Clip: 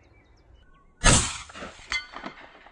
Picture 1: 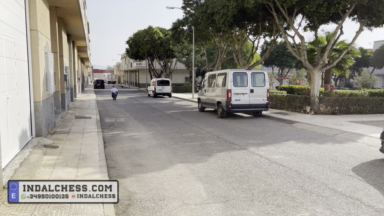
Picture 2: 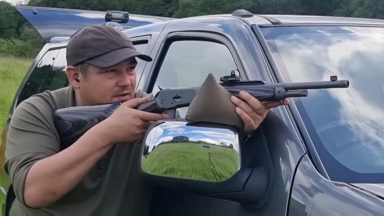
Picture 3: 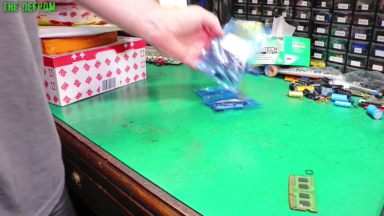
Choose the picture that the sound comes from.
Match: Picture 2